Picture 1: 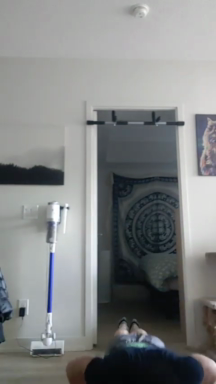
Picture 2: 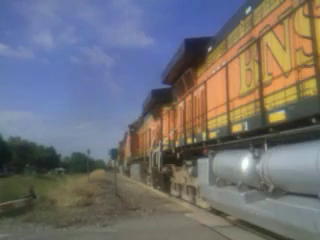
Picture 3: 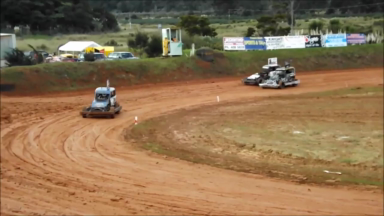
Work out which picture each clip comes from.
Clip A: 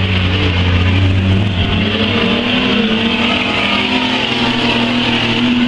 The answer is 3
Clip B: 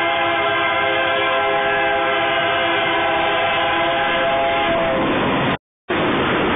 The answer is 2